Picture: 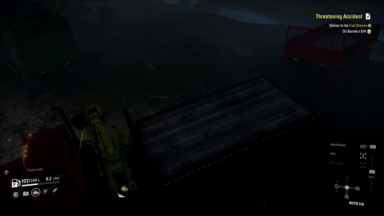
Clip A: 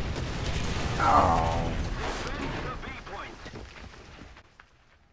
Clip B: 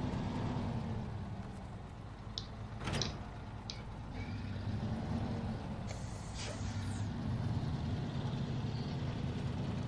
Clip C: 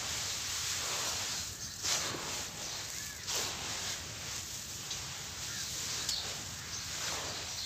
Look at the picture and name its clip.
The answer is B